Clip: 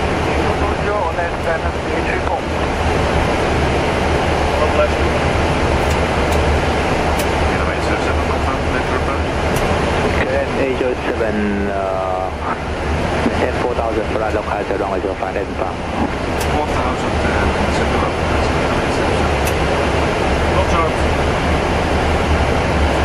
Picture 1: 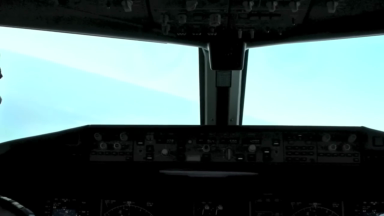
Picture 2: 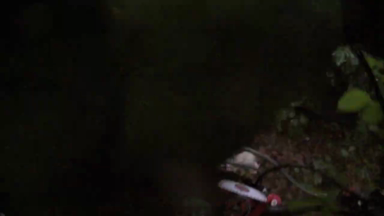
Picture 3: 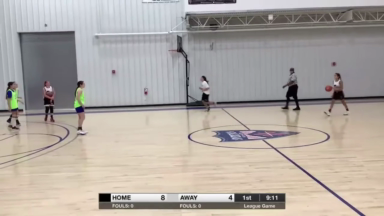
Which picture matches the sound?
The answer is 1